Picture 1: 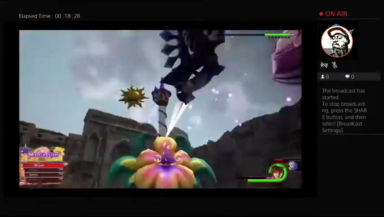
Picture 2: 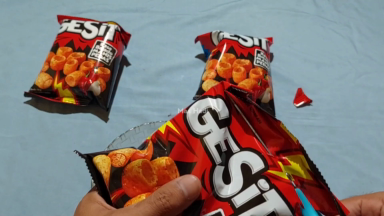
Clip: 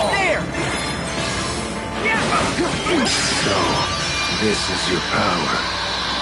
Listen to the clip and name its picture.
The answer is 1